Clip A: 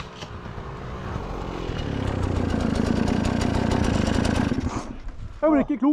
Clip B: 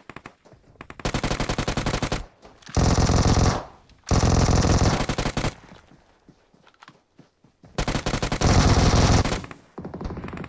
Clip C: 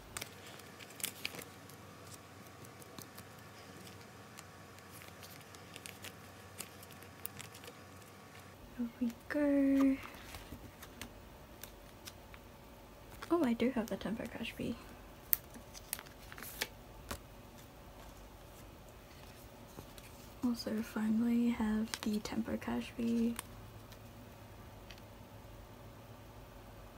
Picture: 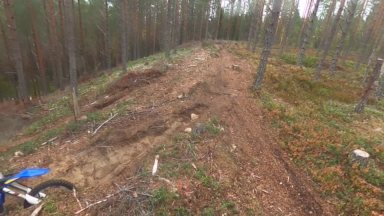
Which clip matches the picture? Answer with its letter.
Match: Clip A